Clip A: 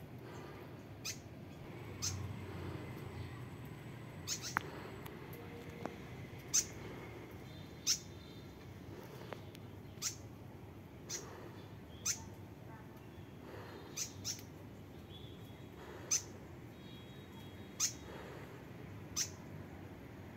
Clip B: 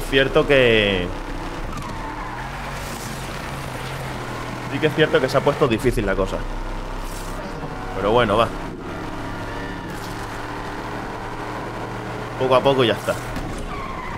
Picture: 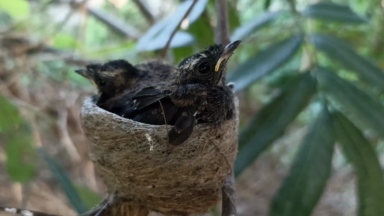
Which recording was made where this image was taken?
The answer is A